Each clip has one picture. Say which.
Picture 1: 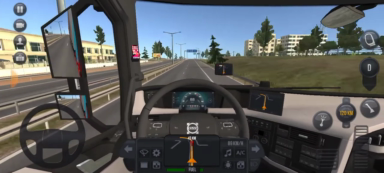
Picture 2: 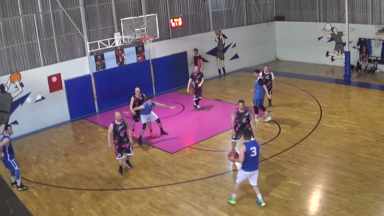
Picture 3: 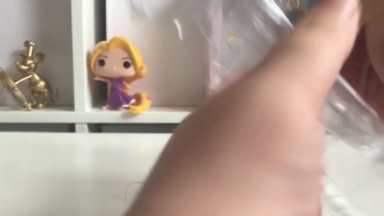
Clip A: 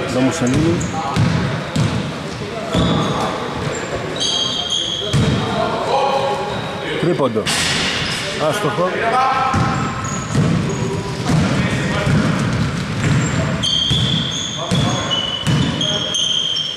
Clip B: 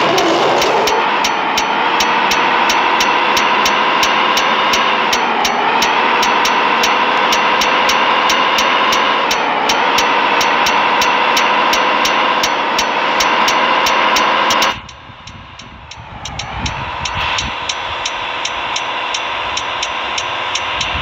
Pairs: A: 2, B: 1